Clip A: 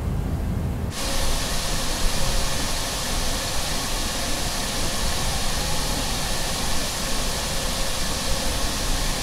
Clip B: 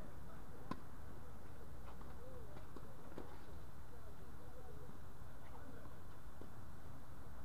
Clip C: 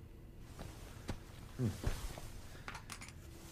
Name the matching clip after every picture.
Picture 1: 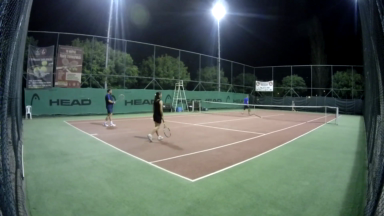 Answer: B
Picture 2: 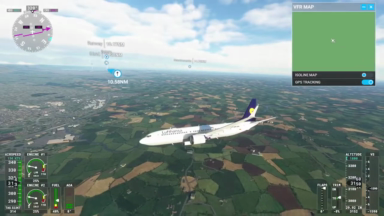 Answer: A